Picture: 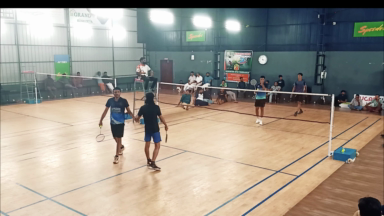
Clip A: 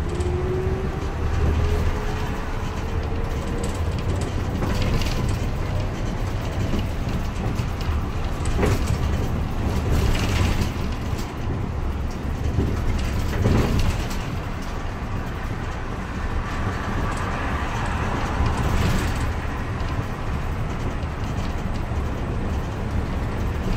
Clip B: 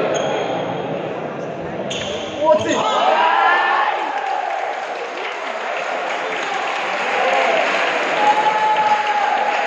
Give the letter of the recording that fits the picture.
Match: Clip B